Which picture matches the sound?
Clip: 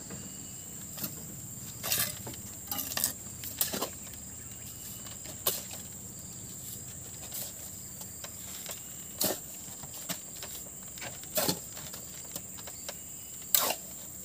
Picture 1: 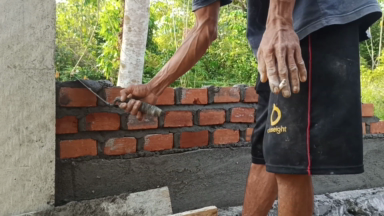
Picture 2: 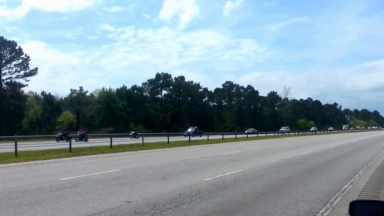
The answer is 1